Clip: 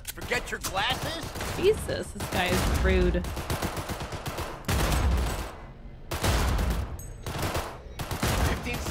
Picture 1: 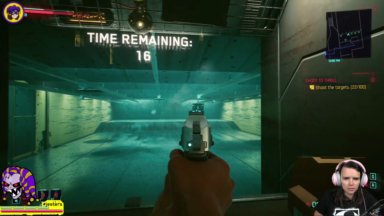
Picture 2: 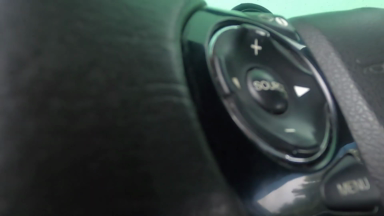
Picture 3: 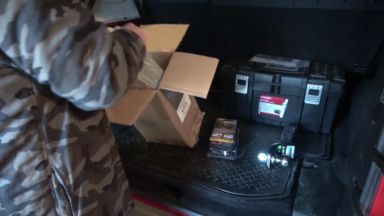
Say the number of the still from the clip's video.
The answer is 1